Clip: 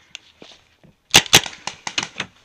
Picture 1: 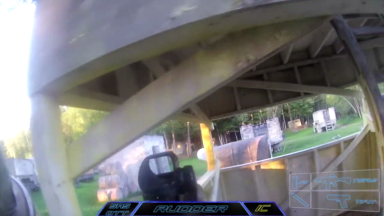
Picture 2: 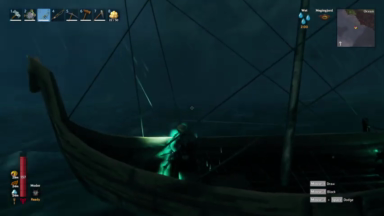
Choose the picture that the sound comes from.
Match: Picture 1